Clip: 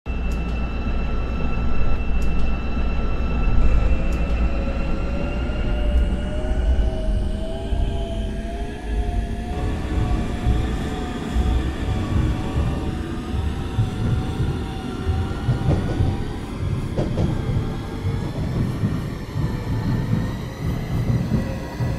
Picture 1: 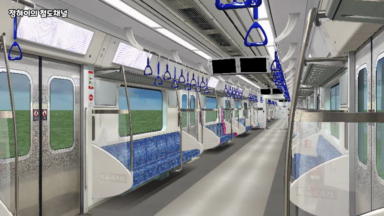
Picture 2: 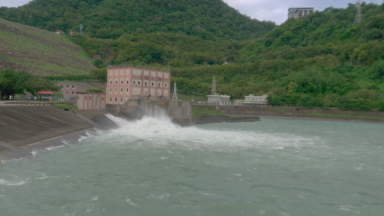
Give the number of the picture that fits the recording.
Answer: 1